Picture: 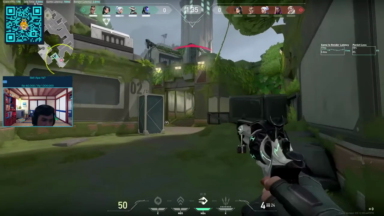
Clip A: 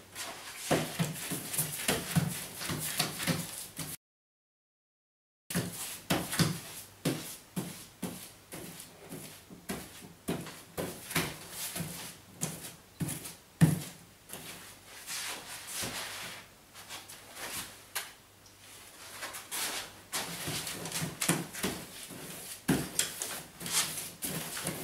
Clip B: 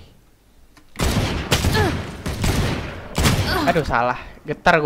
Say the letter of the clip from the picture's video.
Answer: B